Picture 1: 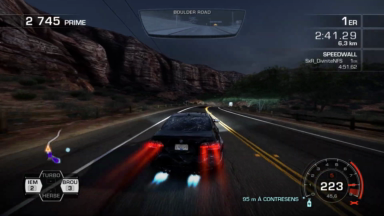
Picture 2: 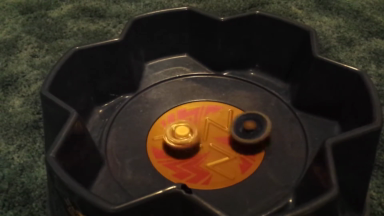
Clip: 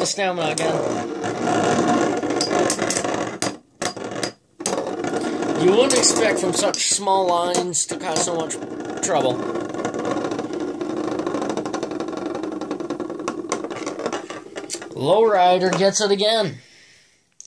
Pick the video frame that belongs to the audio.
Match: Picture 2